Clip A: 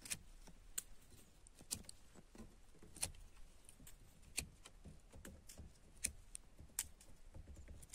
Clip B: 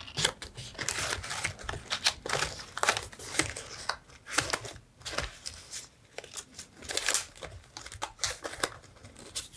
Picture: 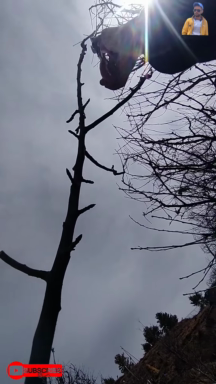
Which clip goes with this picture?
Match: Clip A